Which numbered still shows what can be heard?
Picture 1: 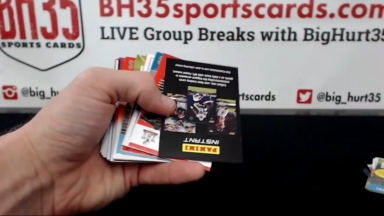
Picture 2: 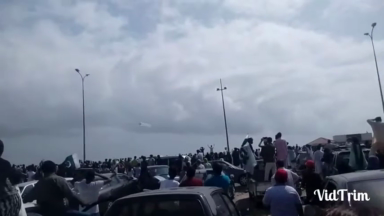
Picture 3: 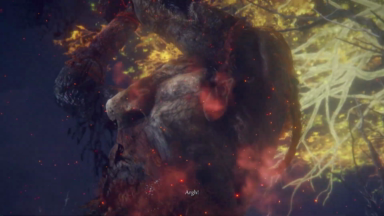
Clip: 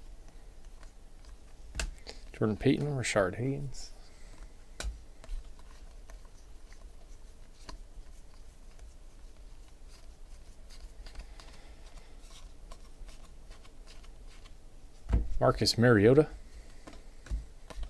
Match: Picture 1